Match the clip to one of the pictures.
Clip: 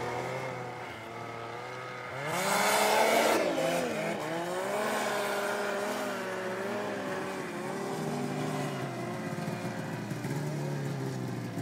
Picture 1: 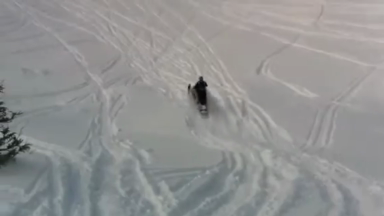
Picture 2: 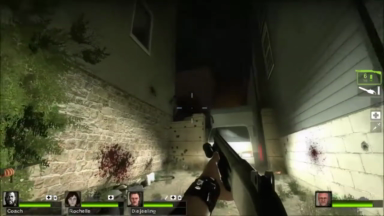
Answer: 1